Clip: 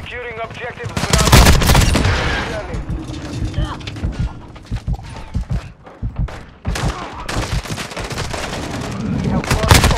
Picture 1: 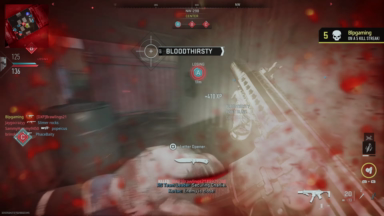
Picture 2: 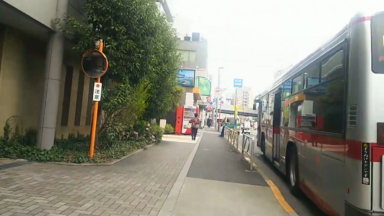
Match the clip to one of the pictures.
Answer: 1